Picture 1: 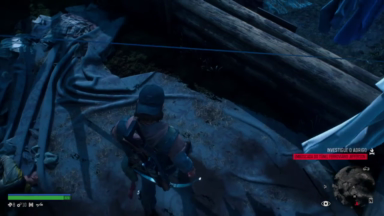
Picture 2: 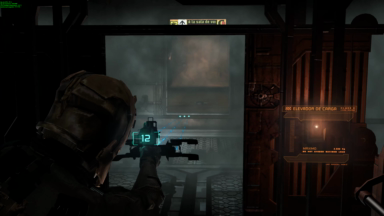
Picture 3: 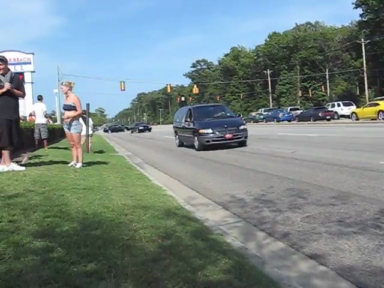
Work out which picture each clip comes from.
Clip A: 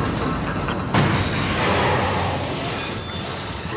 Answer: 2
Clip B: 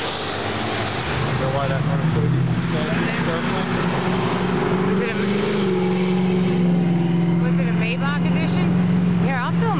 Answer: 3